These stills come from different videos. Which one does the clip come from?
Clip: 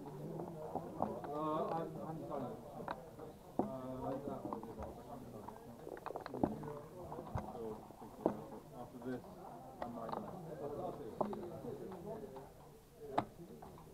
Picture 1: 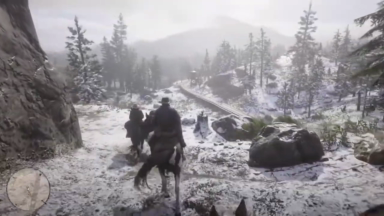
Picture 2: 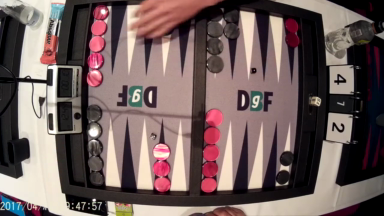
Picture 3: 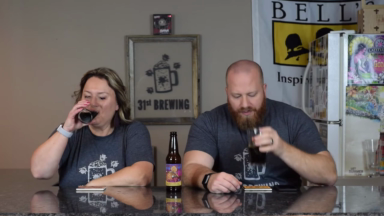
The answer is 2